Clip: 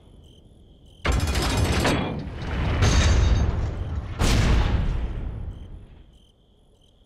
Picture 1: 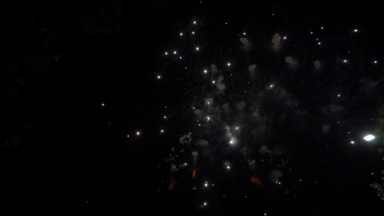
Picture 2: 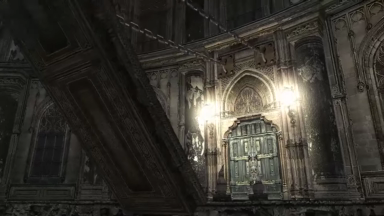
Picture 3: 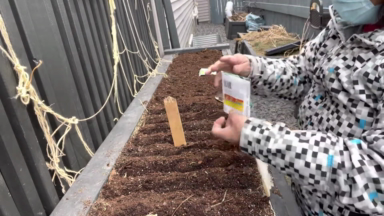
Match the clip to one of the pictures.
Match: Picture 2